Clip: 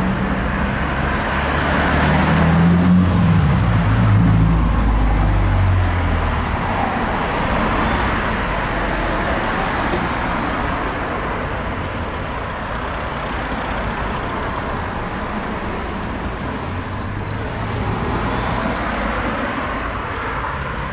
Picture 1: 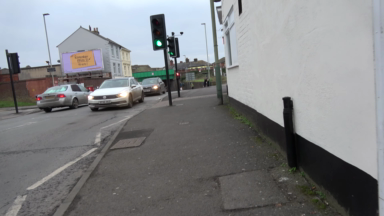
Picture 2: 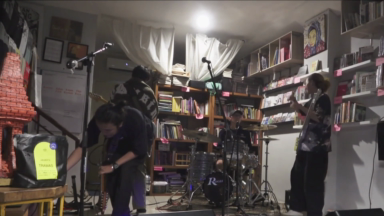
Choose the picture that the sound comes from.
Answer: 1